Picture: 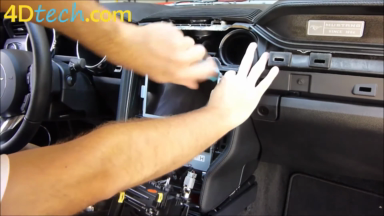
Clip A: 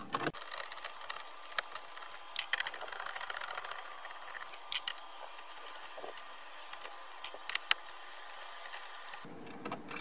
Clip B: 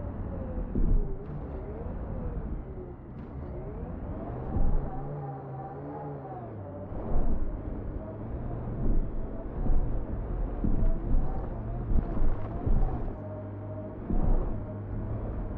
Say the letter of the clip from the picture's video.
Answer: A